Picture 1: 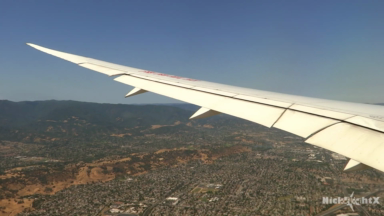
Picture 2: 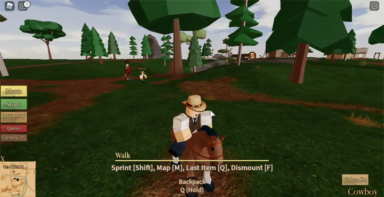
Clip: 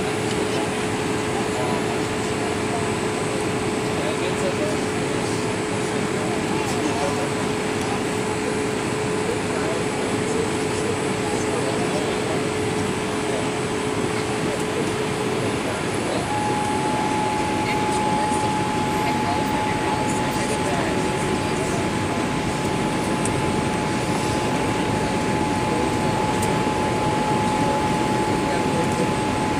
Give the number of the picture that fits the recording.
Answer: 1